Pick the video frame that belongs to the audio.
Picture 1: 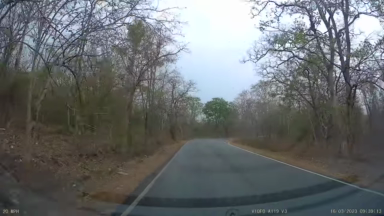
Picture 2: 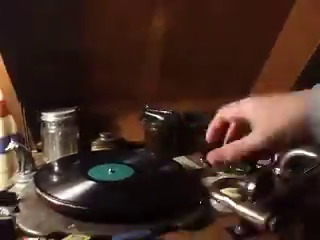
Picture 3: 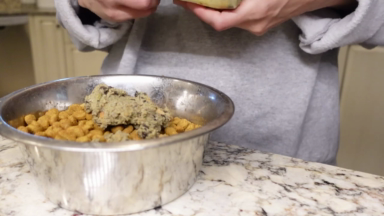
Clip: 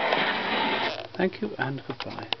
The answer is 2